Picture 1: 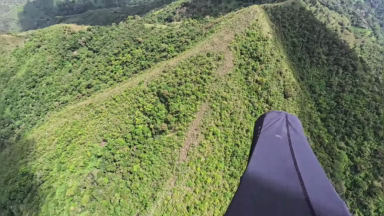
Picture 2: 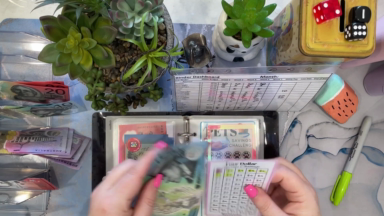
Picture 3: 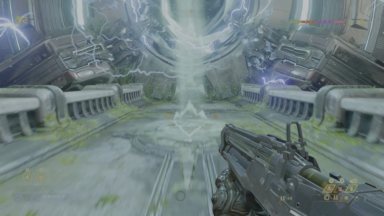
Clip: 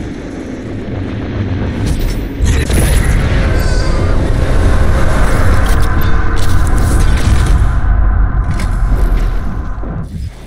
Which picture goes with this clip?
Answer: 3